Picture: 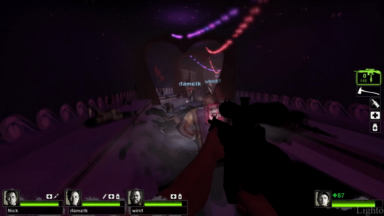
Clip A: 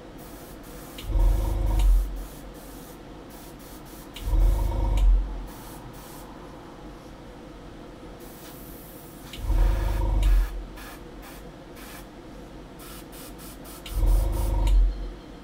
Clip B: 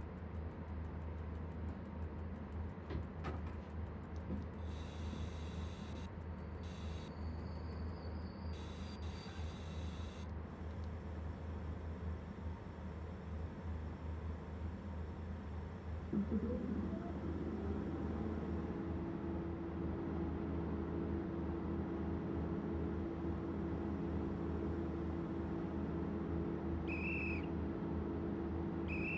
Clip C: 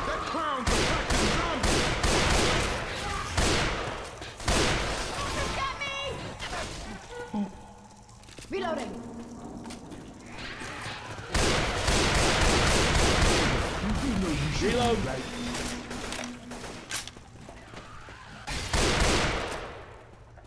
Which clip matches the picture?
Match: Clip C